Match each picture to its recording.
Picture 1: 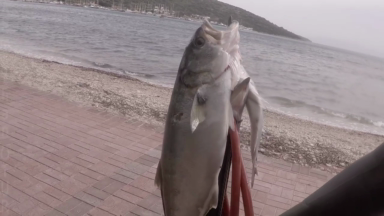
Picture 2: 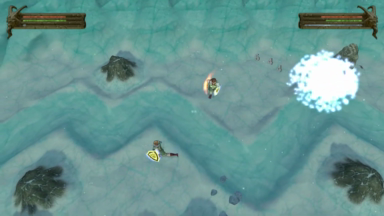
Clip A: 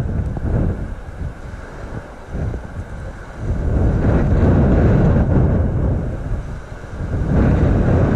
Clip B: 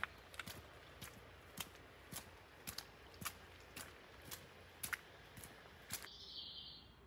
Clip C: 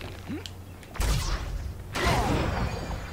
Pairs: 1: A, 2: C